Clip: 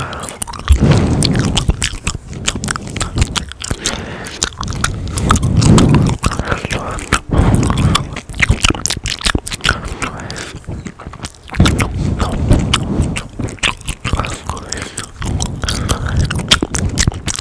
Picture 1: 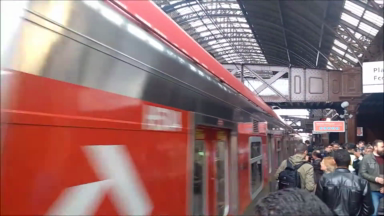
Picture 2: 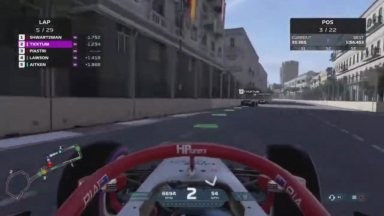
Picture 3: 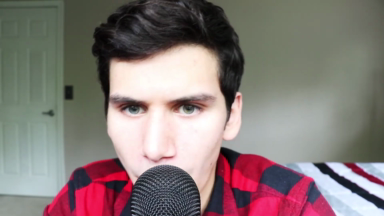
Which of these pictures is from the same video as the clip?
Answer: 3